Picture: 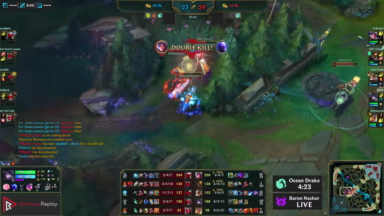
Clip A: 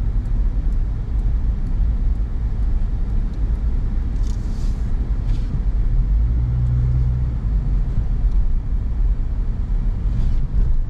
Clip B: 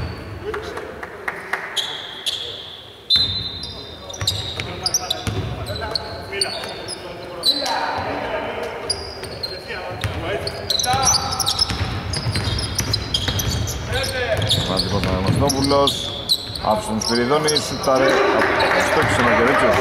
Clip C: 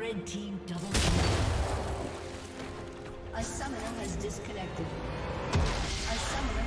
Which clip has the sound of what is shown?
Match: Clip C